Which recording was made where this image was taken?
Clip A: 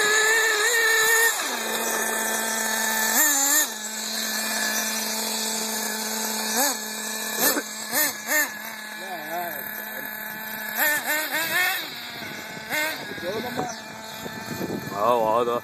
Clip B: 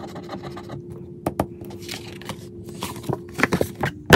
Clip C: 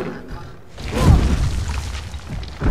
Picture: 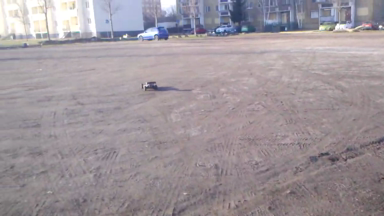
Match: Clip A